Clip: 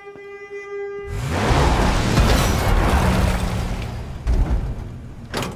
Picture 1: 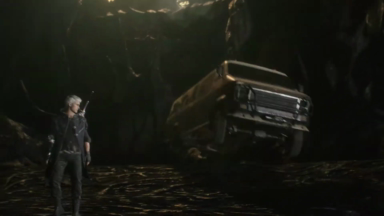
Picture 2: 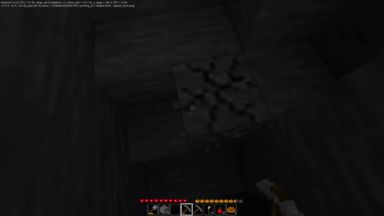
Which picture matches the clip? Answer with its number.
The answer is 1